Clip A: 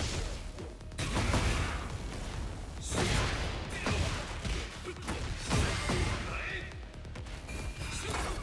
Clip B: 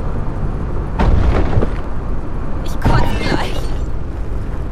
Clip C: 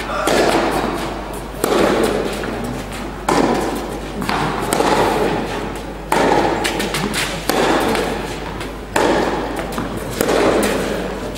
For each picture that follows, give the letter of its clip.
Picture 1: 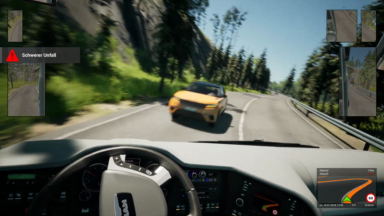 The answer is B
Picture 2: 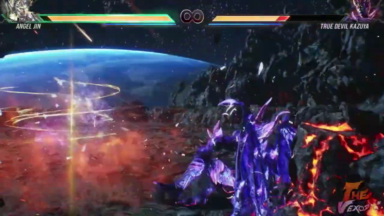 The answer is A